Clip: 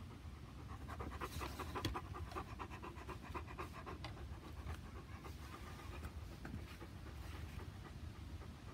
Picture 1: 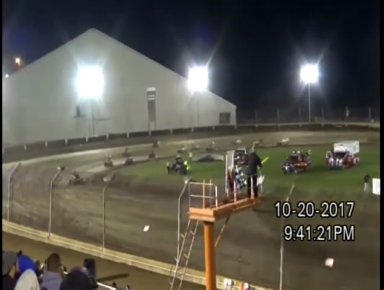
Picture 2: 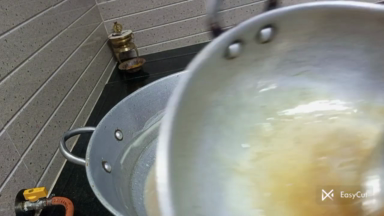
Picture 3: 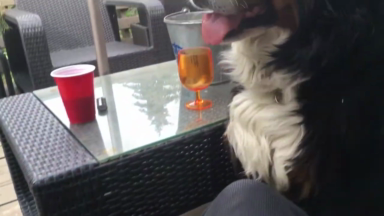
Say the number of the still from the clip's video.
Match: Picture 3